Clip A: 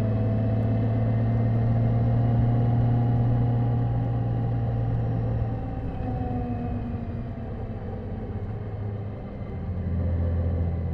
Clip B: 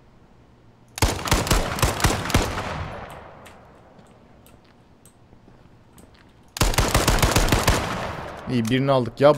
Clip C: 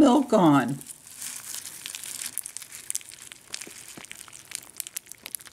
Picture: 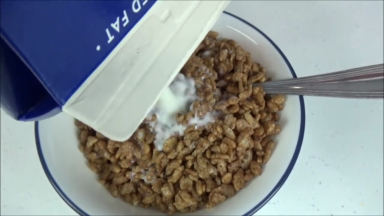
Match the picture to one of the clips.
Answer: C